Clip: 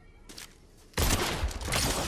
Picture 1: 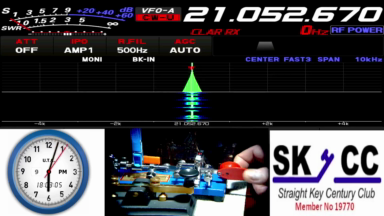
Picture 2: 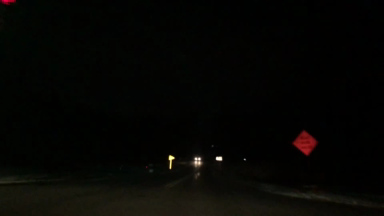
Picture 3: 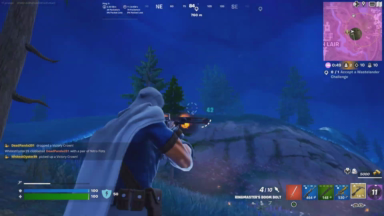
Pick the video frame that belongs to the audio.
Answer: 3